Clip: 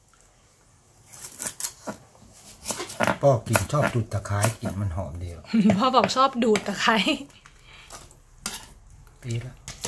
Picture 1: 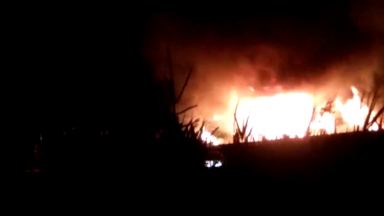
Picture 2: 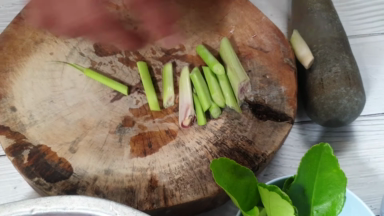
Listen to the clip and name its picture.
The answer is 2